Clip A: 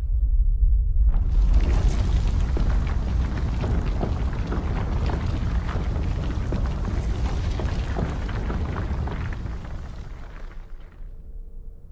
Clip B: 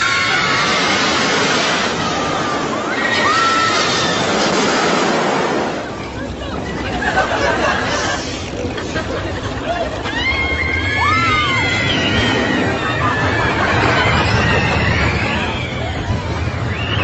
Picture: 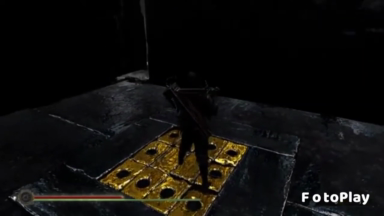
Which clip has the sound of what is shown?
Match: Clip A